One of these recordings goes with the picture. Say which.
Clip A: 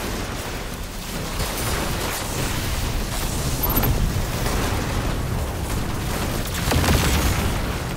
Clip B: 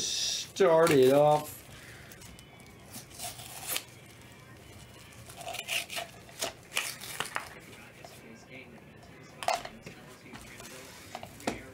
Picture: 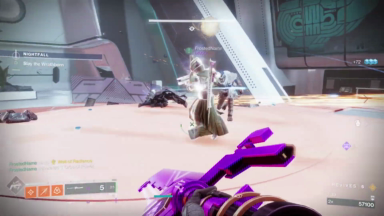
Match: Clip A